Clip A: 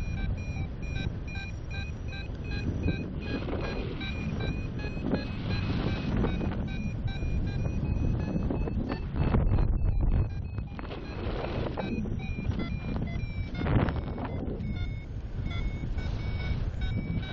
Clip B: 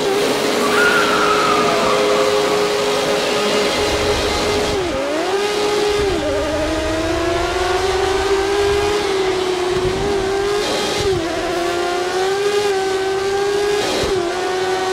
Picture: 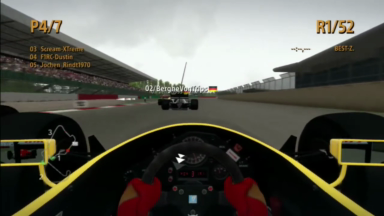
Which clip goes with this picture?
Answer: B